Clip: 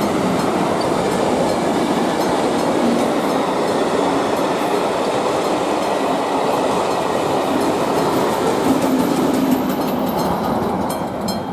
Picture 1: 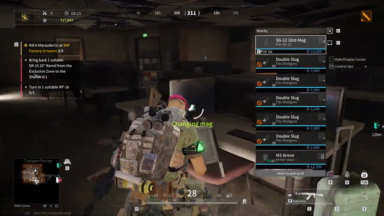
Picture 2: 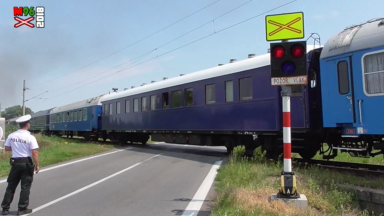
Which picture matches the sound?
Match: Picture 2